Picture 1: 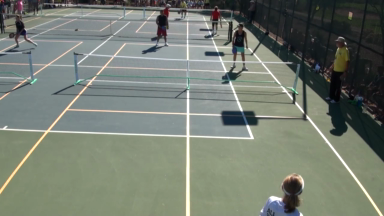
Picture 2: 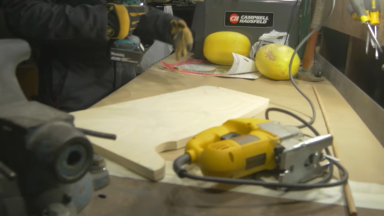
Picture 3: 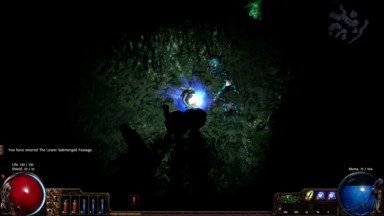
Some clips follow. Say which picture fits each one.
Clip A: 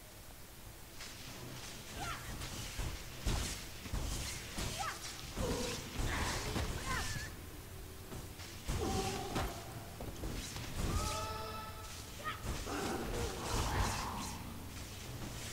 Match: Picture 3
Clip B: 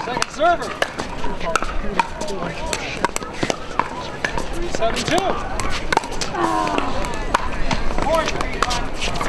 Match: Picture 1